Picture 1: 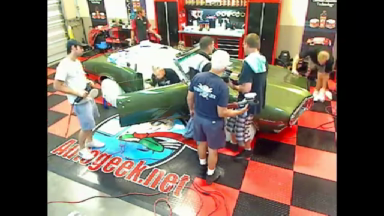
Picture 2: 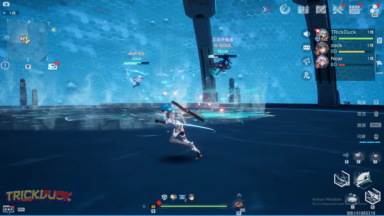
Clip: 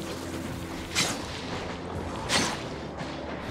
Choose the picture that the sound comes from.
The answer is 2